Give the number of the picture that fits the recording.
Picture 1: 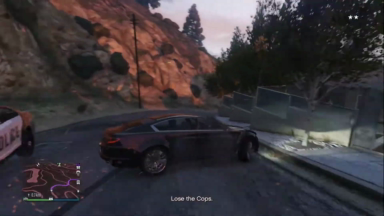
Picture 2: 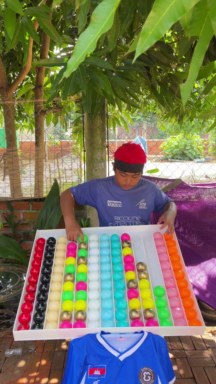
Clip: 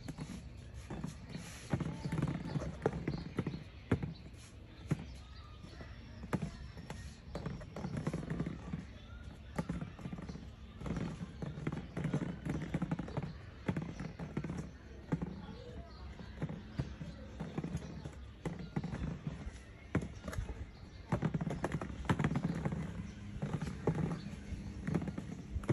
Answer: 2